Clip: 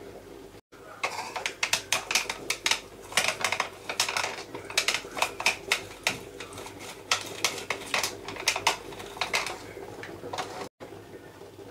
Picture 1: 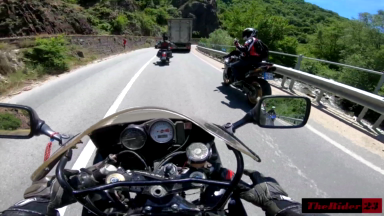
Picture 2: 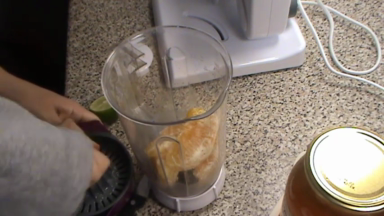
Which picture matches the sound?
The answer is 2